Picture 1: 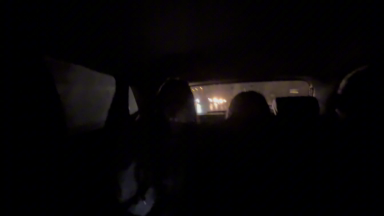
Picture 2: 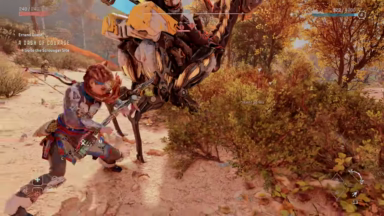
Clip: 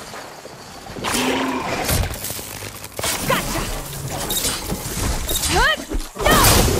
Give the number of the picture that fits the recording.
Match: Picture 2